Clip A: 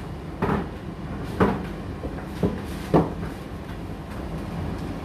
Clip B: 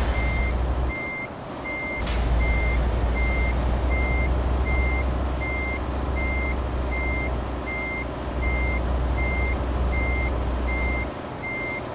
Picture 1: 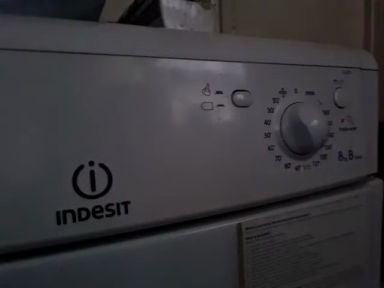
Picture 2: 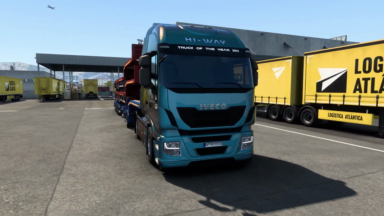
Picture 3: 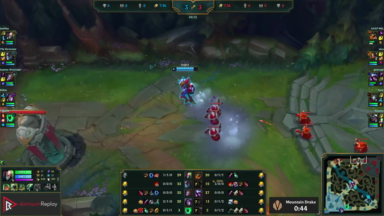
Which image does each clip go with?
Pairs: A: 1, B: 2